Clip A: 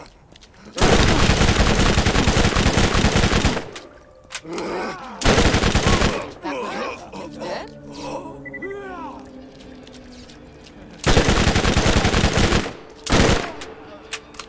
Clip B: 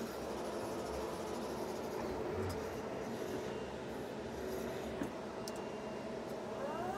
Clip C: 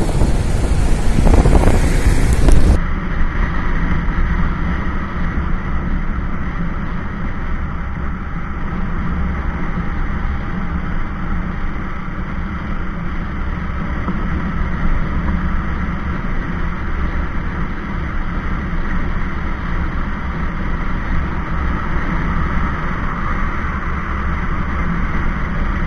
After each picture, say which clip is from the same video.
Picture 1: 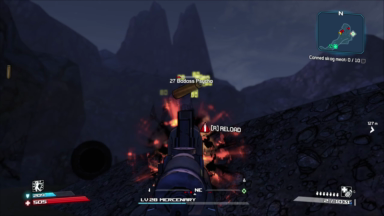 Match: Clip A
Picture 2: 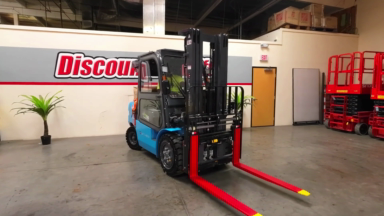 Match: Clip B